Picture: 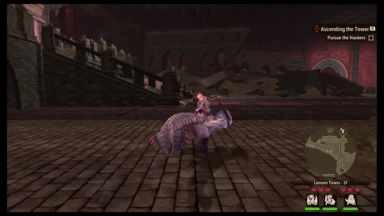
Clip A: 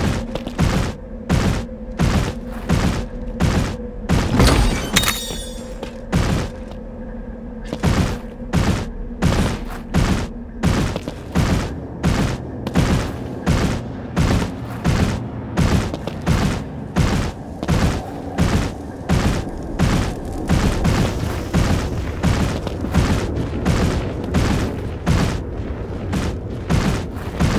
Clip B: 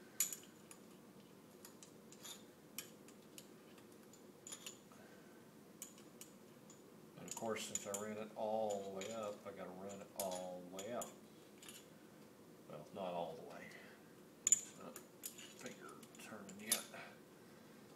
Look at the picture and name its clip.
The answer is A